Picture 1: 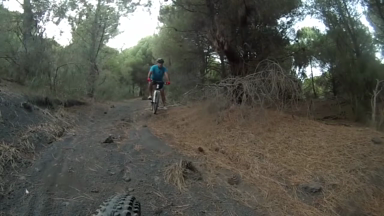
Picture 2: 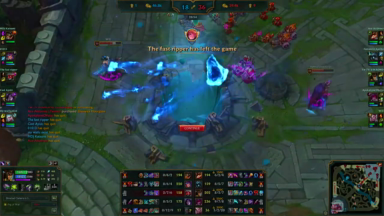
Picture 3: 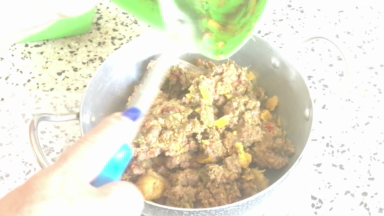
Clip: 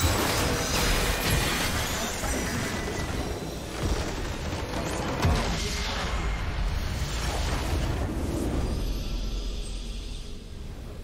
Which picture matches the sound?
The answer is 2